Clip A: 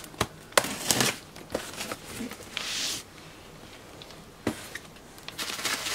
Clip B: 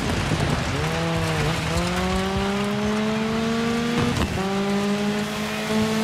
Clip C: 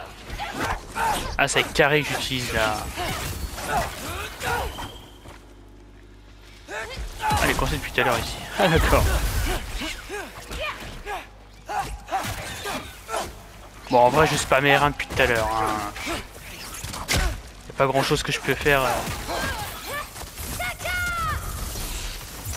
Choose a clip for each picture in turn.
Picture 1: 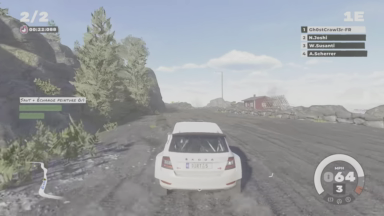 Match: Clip B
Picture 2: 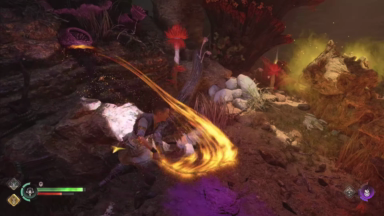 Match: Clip C